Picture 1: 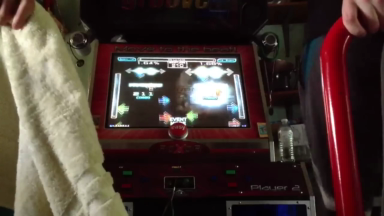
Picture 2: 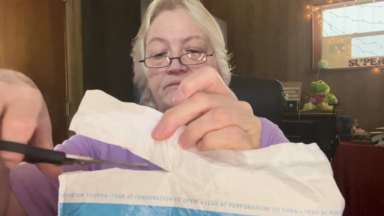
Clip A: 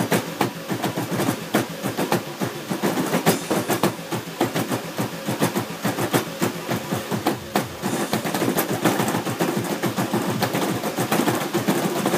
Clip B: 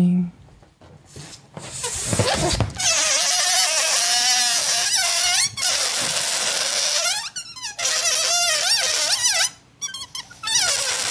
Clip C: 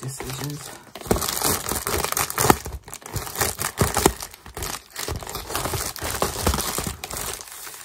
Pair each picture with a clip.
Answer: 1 A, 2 C